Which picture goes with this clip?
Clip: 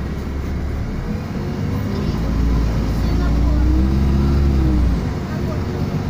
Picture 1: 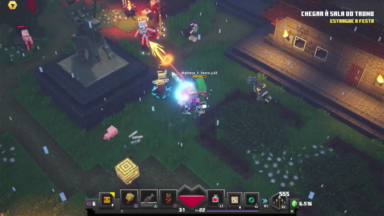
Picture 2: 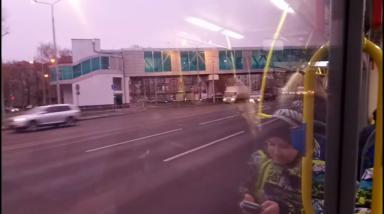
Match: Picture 2